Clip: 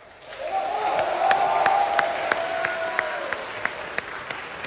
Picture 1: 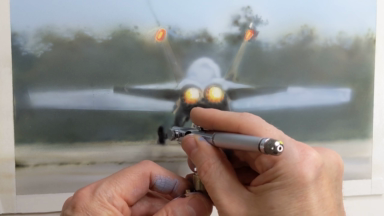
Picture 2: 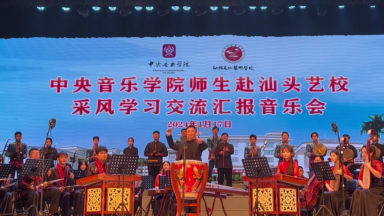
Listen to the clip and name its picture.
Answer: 2